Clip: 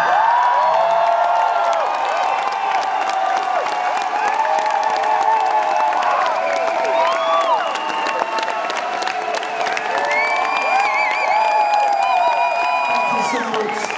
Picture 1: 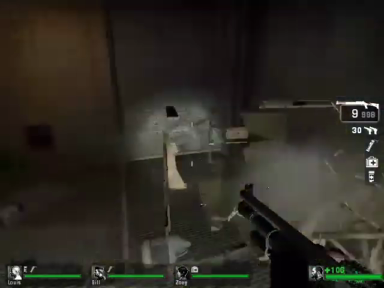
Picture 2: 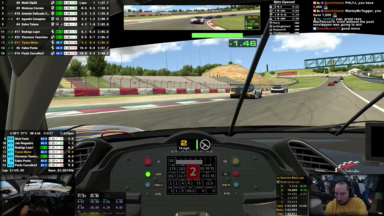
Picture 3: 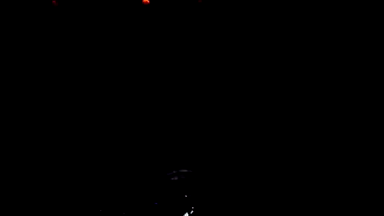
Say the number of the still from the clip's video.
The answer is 3